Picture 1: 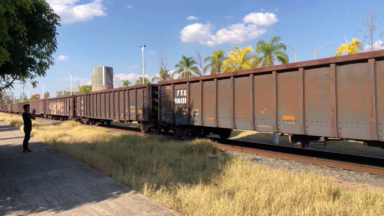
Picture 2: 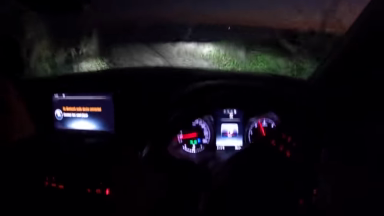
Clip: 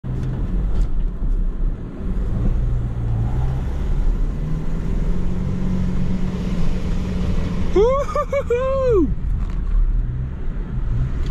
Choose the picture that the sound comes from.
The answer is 2